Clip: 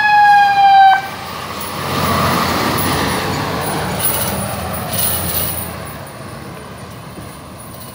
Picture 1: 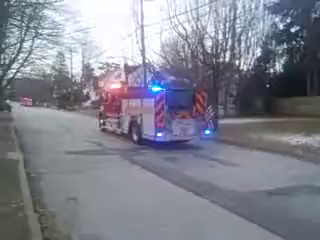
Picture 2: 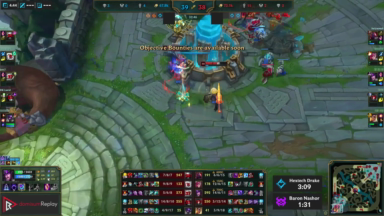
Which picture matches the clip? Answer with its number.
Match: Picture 1